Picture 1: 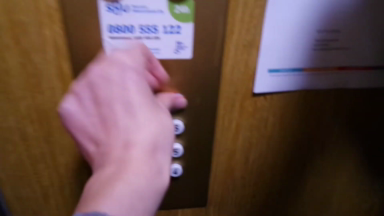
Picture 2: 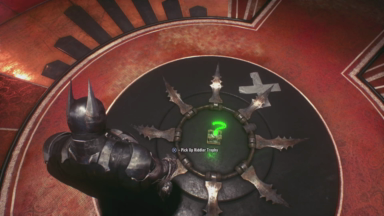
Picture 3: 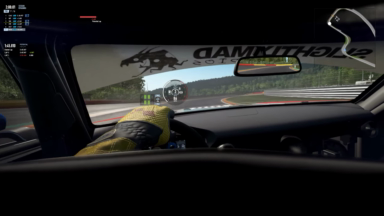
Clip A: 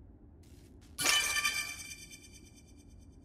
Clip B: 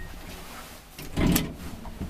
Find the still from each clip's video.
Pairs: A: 2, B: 1